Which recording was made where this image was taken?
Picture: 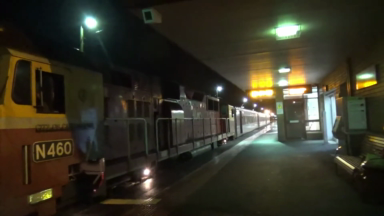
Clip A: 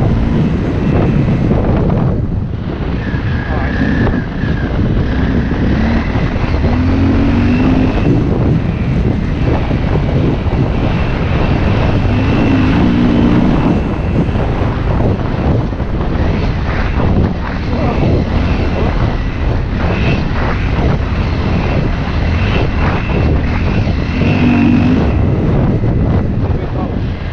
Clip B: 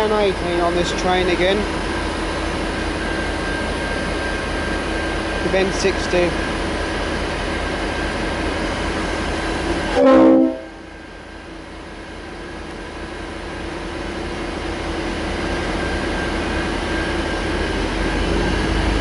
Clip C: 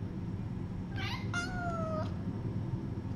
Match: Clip B